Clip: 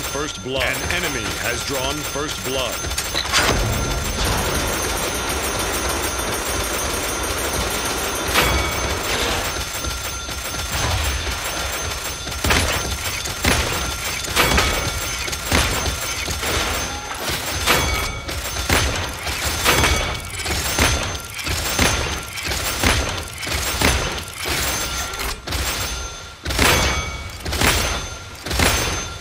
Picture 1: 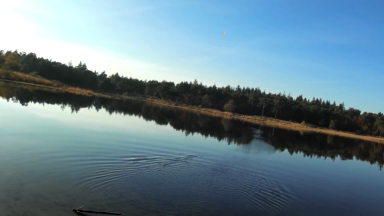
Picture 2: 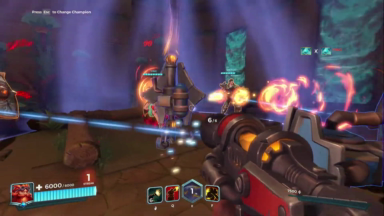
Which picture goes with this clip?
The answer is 2